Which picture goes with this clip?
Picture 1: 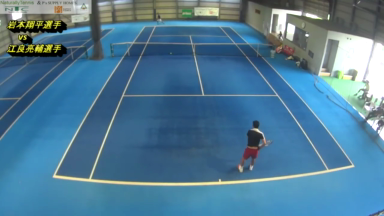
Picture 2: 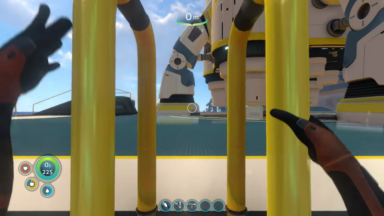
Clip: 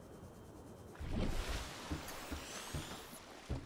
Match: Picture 2